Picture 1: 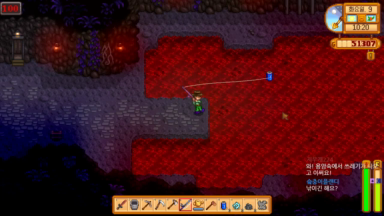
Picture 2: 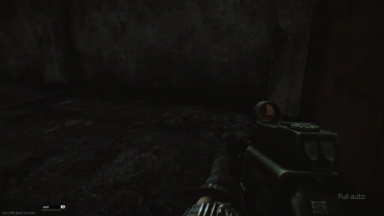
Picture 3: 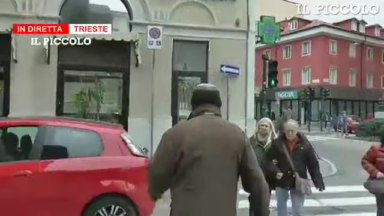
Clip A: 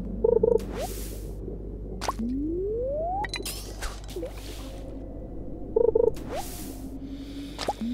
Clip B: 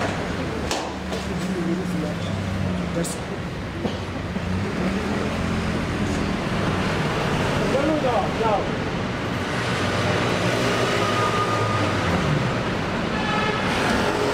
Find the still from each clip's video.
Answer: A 1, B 3